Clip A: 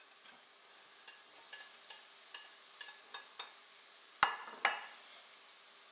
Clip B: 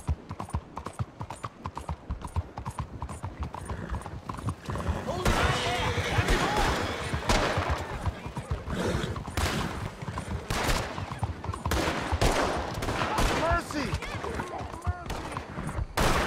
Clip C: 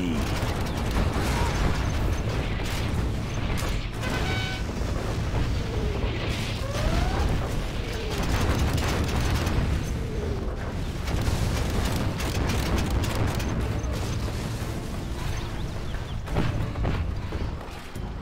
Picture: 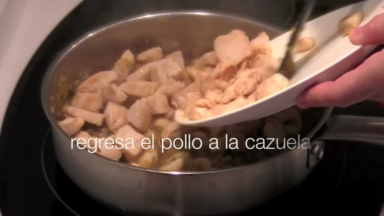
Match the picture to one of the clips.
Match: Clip A